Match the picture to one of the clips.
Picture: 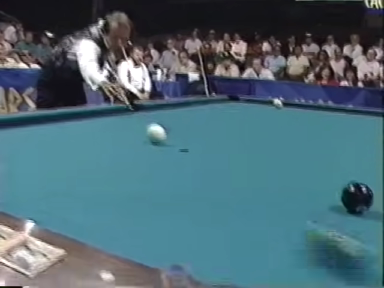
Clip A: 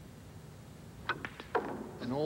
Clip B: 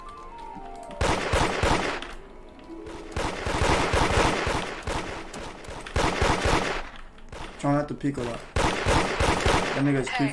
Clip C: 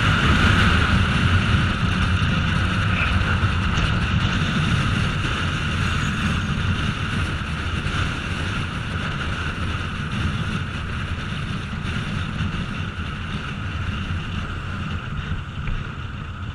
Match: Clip A